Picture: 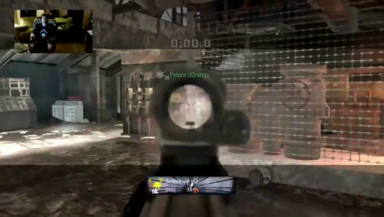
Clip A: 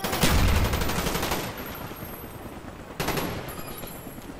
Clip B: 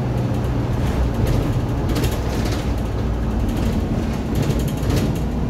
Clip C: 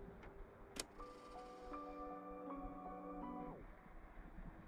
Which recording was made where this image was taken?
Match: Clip A